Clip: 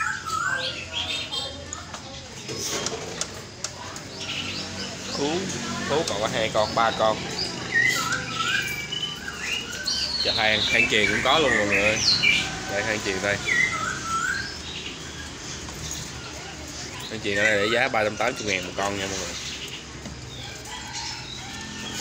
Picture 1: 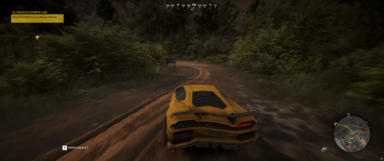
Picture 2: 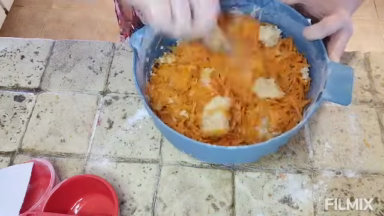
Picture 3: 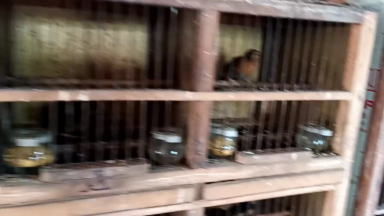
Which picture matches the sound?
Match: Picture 3